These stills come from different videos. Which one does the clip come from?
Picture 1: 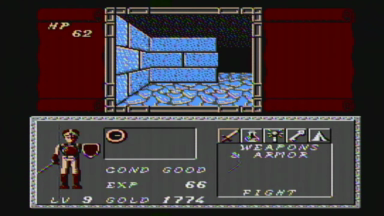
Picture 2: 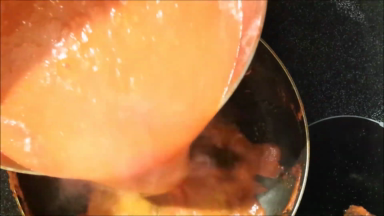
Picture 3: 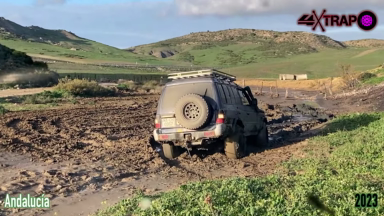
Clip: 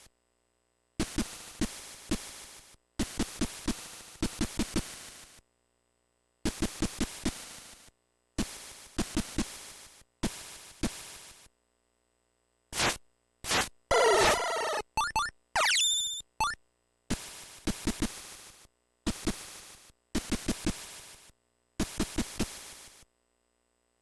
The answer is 1